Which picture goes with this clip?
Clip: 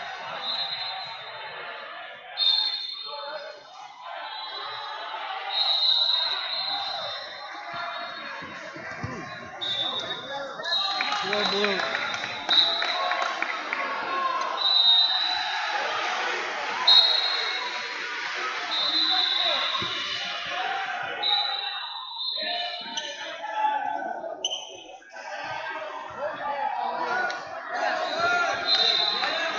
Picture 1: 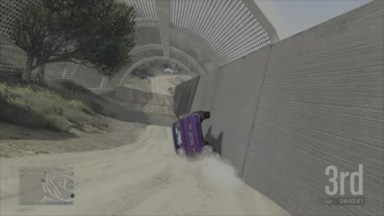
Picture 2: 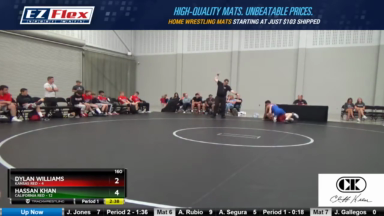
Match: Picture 2